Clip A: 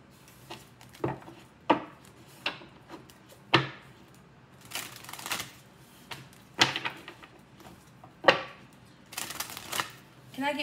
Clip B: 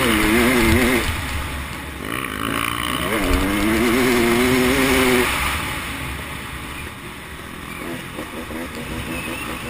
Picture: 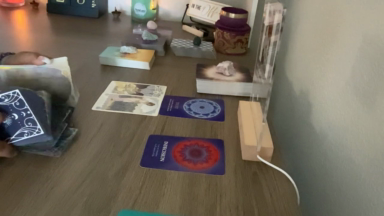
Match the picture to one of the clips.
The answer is A